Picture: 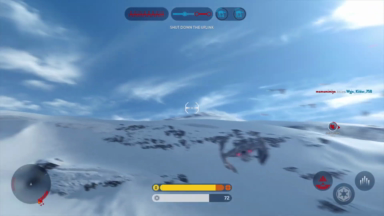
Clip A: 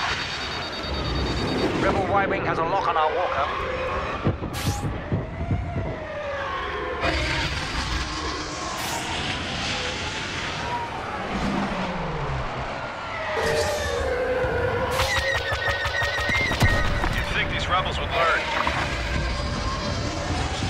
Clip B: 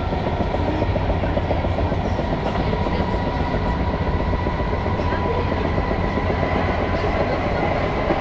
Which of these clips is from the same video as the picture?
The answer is A